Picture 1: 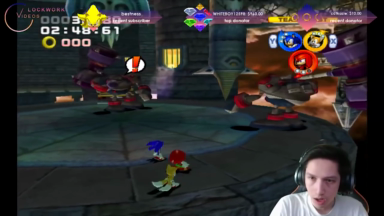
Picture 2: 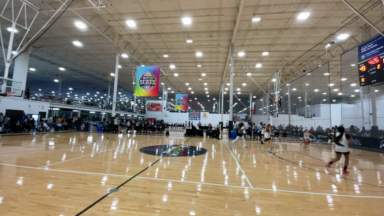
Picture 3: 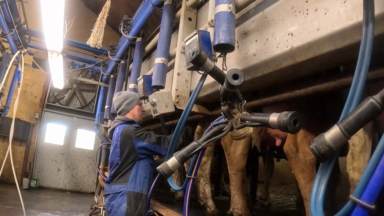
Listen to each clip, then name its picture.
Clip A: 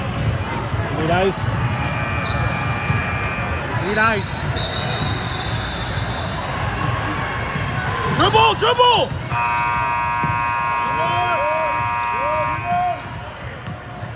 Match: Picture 2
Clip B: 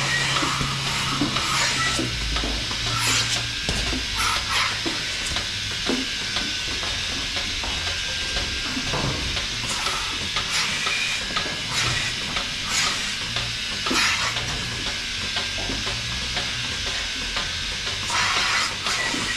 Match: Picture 3